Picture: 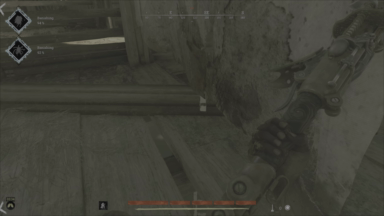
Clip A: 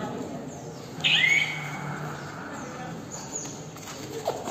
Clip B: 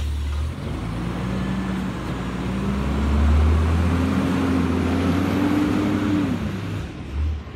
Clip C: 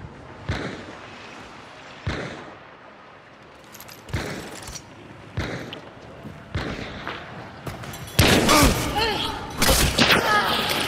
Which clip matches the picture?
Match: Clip C